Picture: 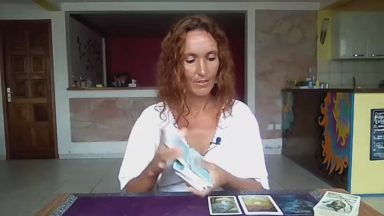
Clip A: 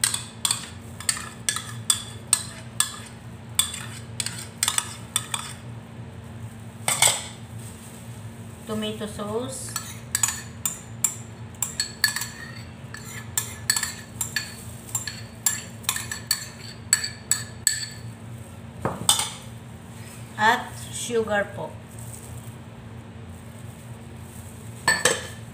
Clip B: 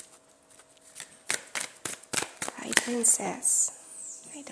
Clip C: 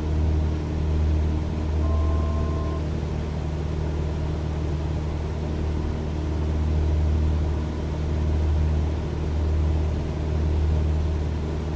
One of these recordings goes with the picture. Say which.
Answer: B